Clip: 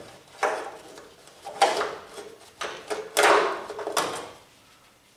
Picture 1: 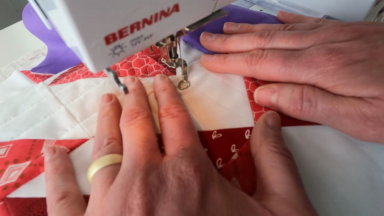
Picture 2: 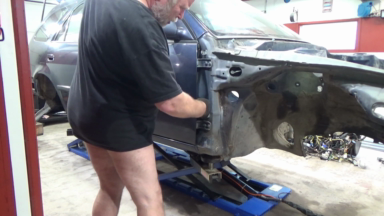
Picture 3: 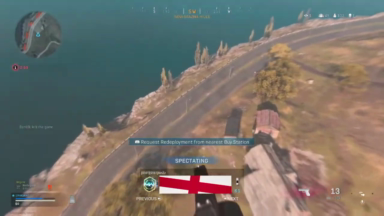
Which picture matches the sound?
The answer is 2